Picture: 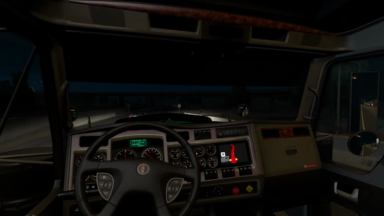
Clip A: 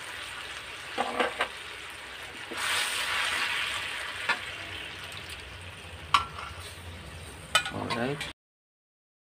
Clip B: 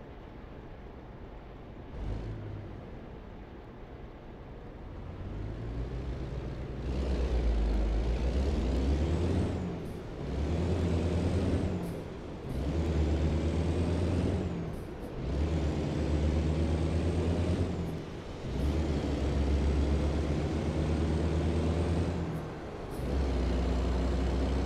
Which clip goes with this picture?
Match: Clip B